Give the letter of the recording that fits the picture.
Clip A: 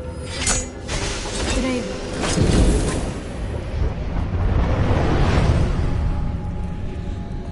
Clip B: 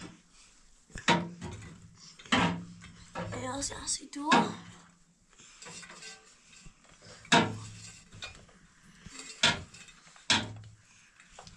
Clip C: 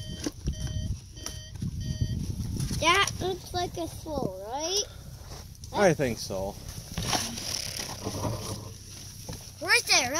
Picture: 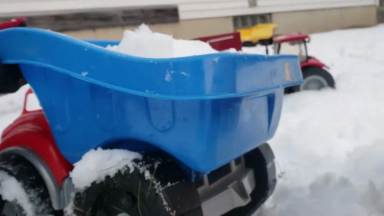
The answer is C